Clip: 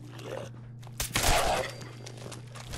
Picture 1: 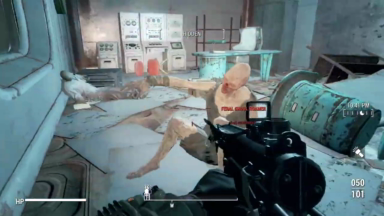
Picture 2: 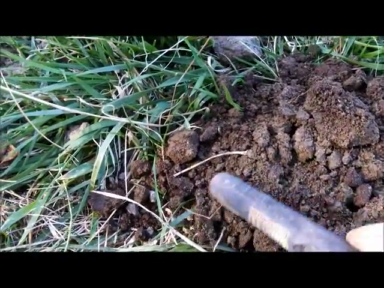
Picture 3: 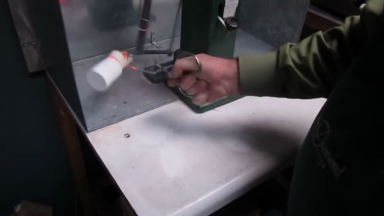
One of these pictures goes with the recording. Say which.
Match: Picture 1